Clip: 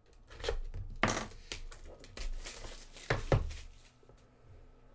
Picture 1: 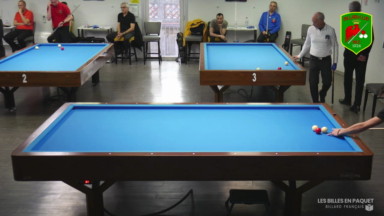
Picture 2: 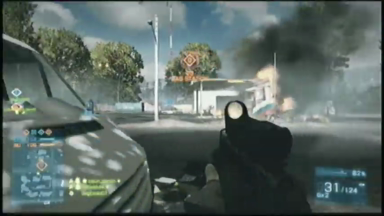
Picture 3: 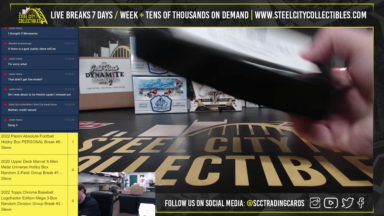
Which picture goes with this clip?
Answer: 3